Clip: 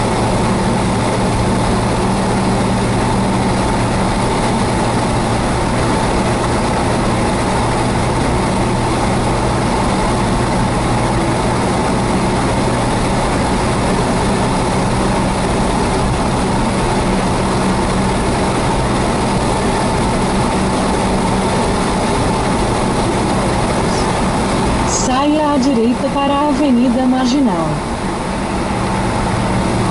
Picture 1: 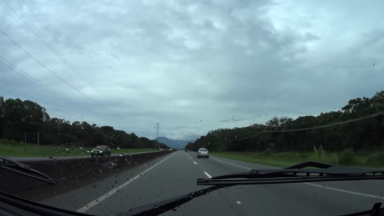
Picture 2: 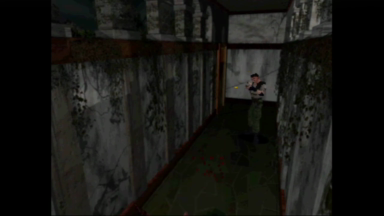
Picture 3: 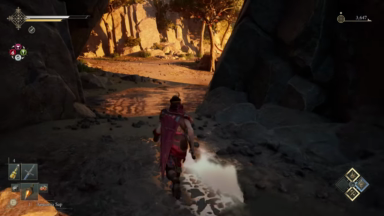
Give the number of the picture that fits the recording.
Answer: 1